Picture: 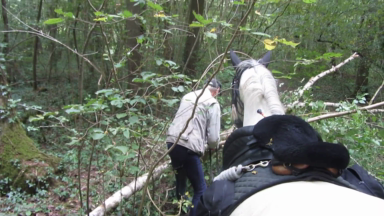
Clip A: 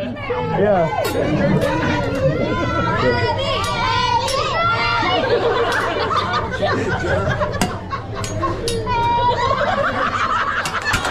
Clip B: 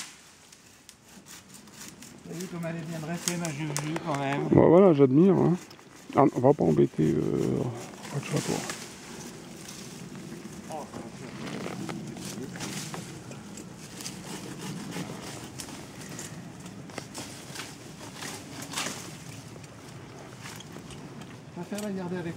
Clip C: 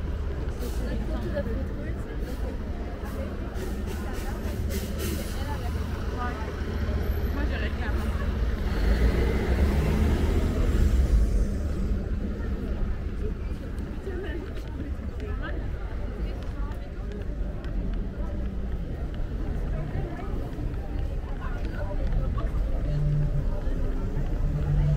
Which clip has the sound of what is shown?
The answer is B